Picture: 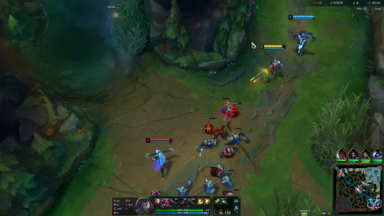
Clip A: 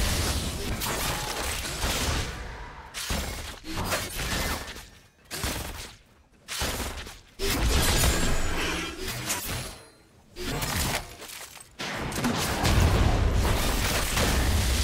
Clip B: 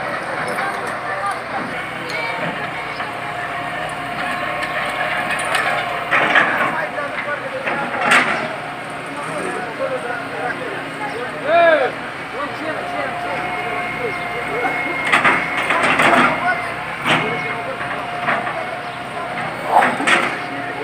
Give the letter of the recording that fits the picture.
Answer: A